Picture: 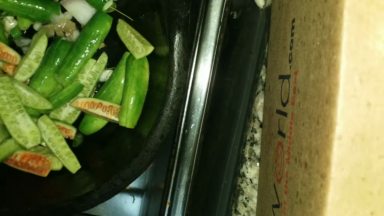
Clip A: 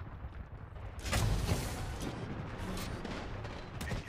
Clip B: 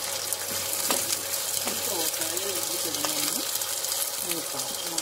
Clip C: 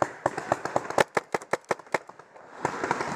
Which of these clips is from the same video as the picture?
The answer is B